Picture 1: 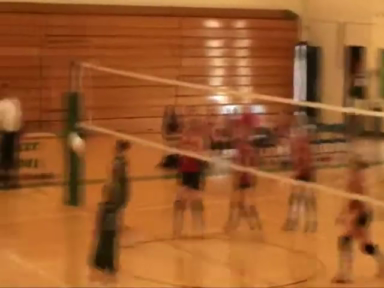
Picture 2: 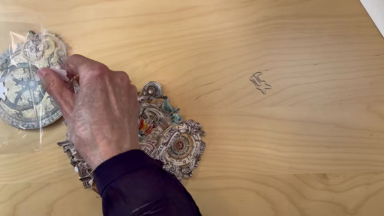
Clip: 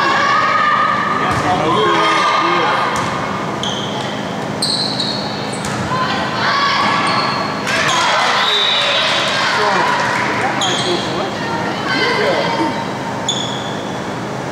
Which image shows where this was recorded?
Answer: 1